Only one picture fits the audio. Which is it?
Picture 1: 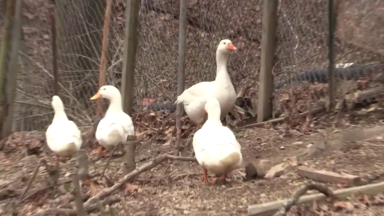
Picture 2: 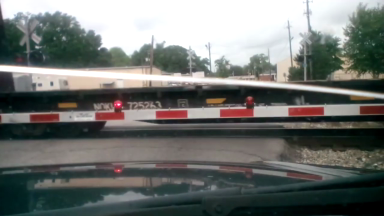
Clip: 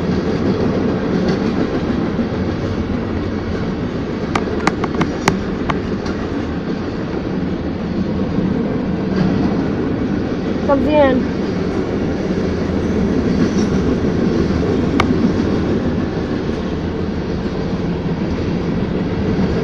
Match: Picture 2